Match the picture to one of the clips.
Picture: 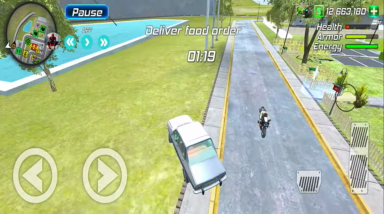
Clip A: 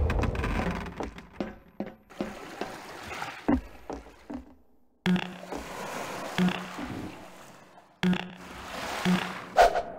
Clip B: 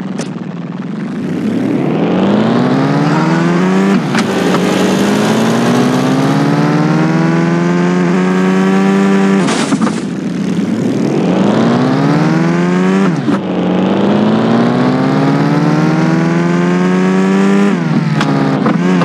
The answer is B